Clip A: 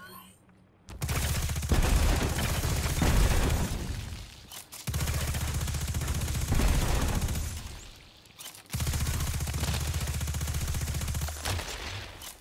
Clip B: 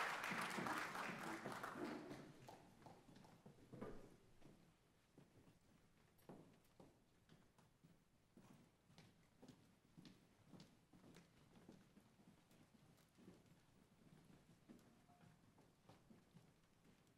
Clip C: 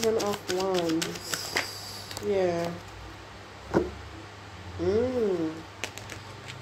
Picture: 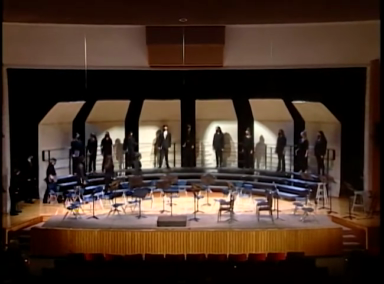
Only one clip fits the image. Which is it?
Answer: B